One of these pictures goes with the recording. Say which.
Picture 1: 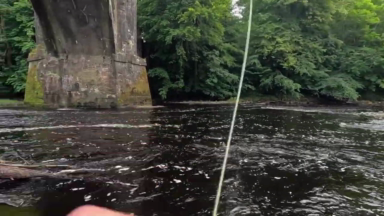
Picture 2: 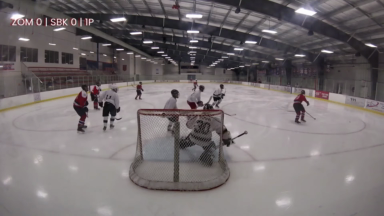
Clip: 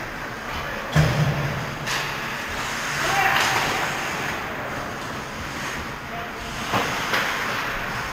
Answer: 2